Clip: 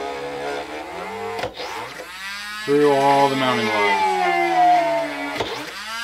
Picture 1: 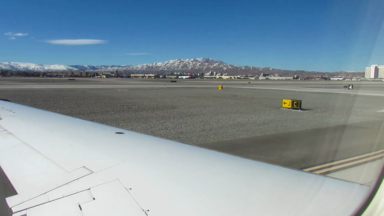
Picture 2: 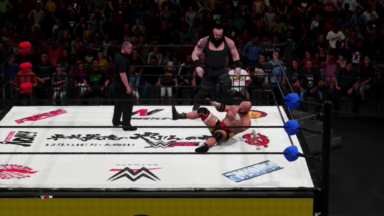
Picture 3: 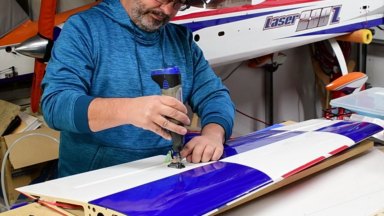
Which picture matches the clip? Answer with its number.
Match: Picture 3